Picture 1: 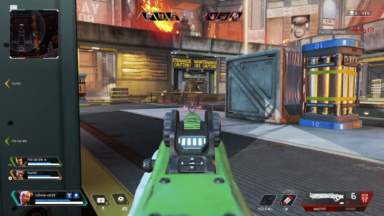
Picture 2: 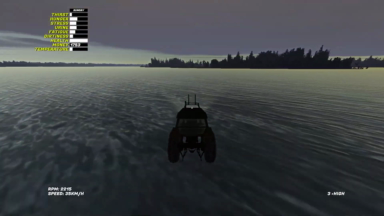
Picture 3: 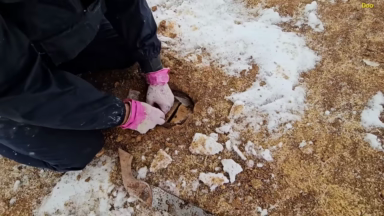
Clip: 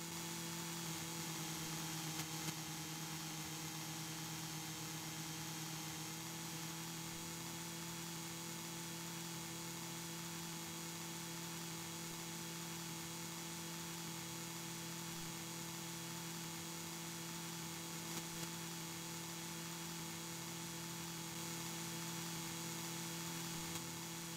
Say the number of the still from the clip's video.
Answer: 2